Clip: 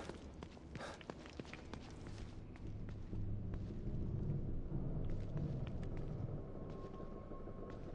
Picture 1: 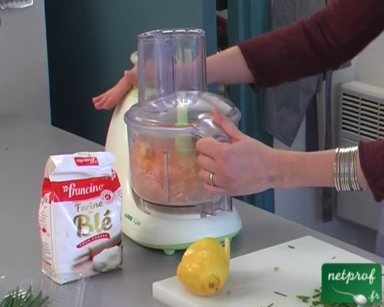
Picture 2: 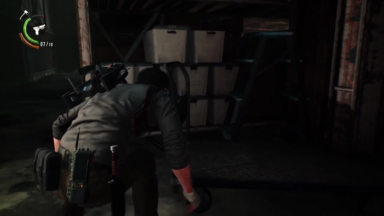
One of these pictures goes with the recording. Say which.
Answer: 2